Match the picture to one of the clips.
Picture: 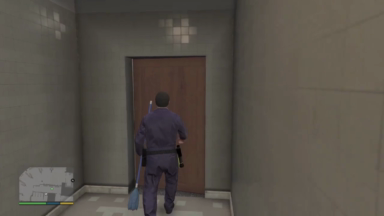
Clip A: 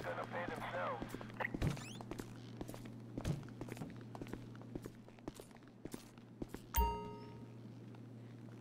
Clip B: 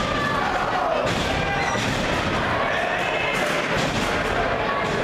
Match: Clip A